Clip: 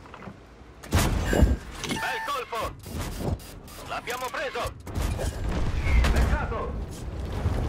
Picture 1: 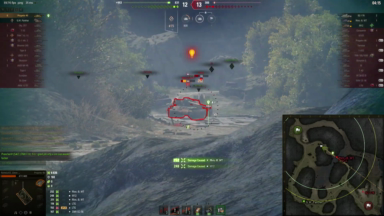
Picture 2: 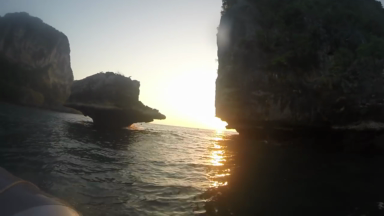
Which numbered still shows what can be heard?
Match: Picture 1